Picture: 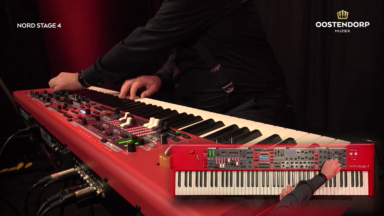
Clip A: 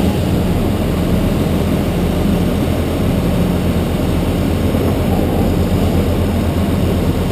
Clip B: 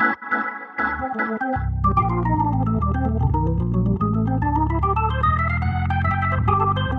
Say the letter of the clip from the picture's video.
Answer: B